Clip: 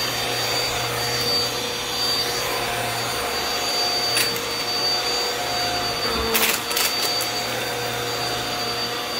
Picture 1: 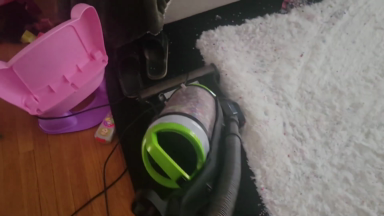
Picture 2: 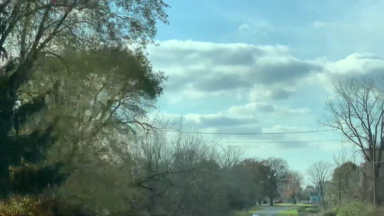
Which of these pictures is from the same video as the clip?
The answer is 1